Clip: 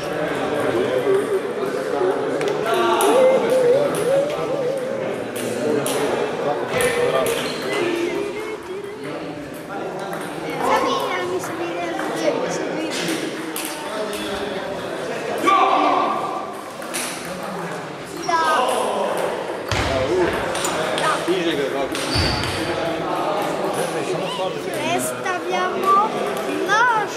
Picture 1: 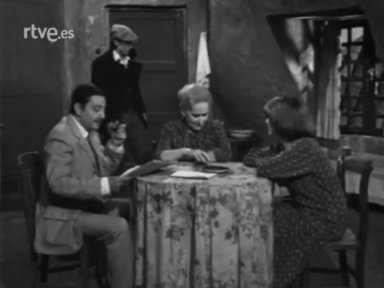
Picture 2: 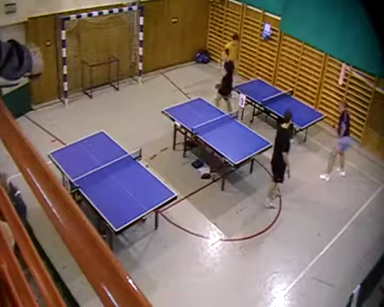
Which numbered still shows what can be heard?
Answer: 2